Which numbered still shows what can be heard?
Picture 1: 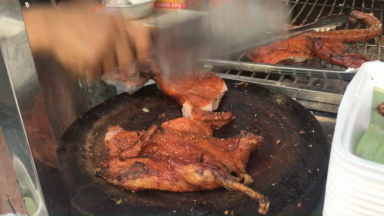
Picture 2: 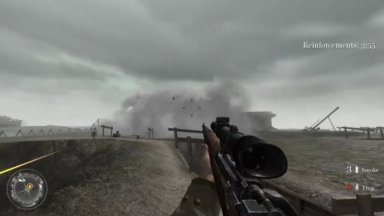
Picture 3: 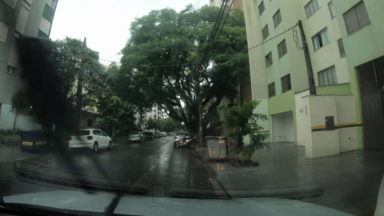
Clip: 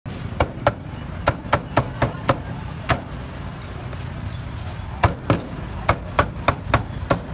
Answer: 1